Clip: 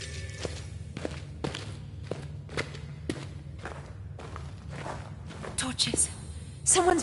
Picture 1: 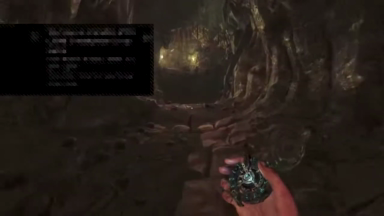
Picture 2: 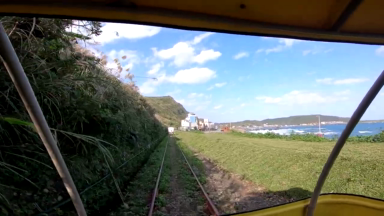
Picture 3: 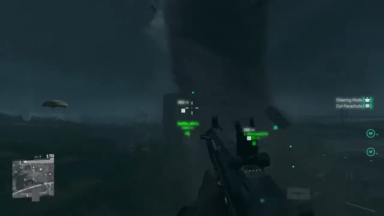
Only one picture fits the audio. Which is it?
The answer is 1